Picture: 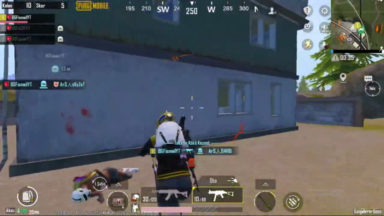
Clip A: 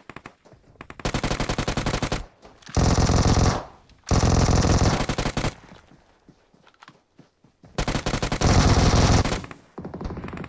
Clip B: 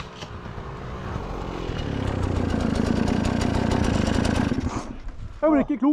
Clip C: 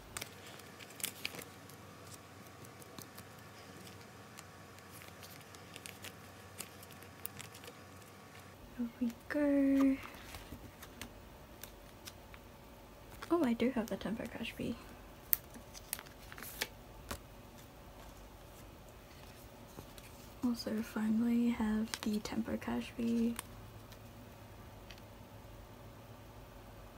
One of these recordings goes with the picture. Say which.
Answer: A